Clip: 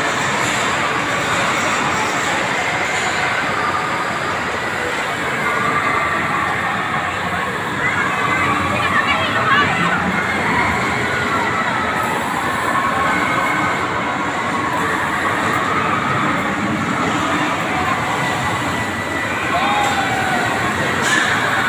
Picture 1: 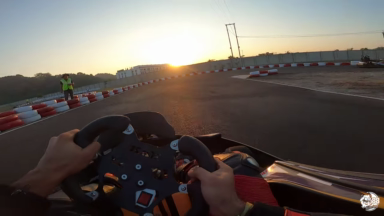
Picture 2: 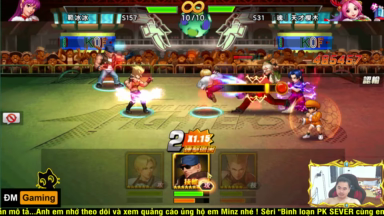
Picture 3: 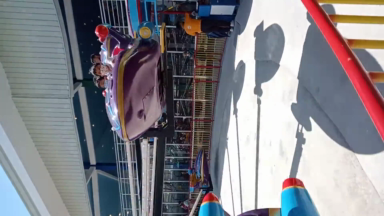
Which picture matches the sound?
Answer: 3